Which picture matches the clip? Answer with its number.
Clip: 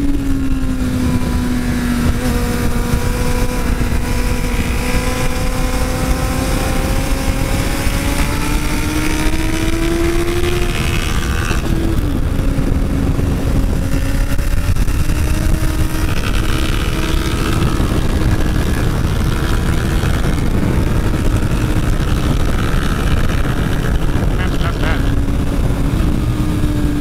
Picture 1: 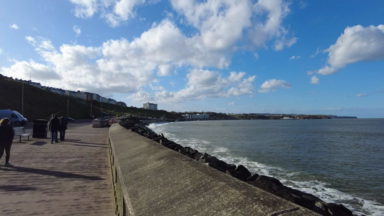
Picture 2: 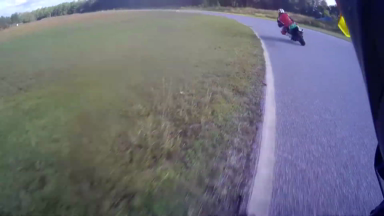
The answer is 2